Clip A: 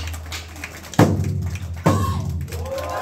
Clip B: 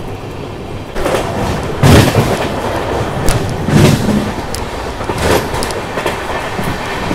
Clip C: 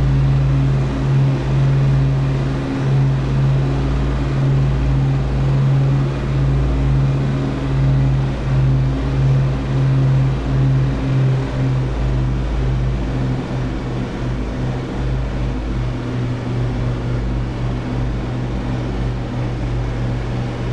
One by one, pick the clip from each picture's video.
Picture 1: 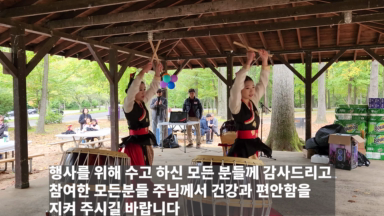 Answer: A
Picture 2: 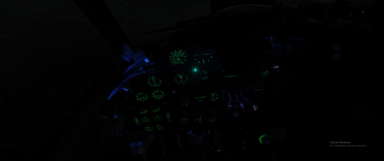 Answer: C